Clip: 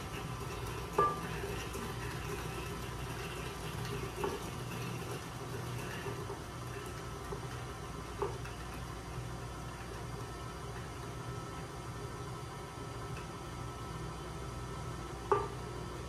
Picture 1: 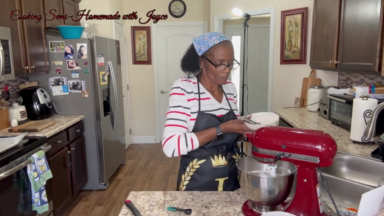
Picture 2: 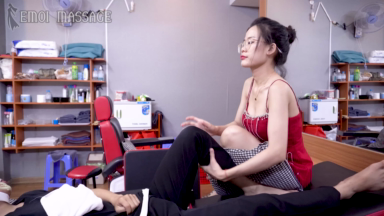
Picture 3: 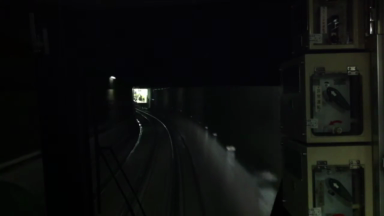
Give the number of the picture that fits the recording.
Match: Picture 1